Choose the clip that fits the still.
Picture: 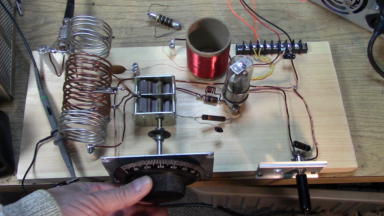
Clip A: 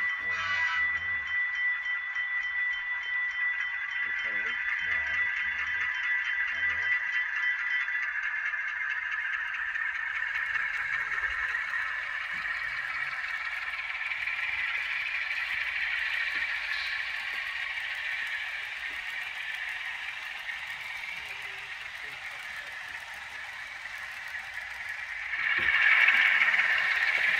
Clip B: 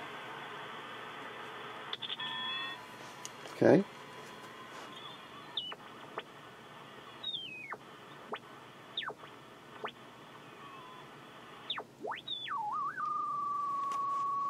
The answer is B